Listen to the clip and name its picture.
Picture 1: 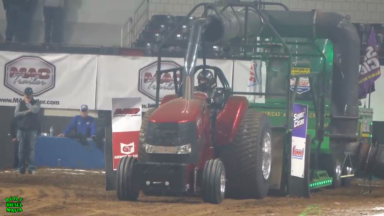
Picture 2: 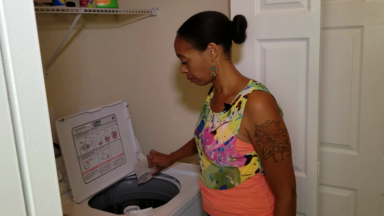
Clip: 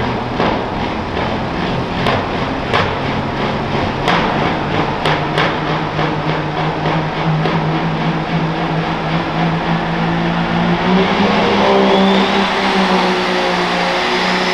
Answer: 1